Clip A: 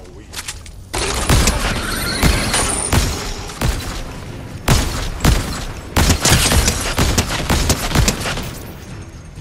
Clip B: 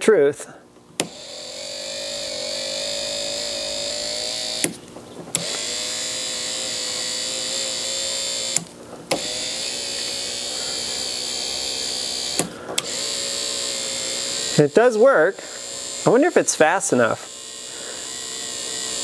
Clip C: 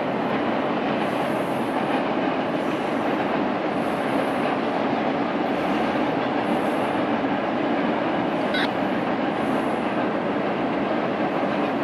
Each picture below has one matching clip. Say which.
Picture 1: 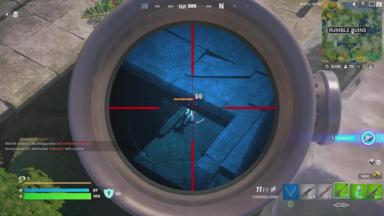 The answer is A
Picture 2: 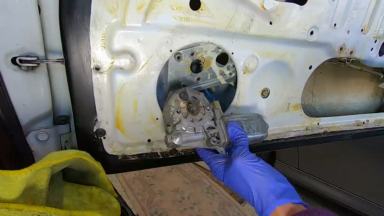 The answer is B